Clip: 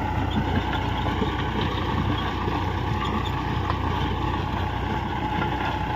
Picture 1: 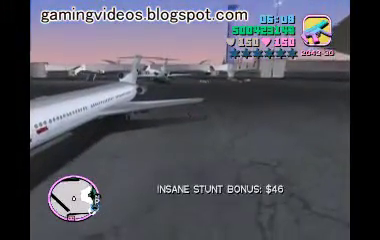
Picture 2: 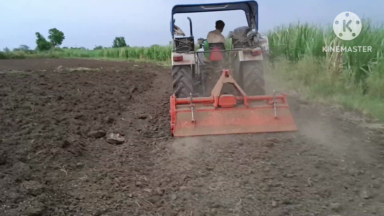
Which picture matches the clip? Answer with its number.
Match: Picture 2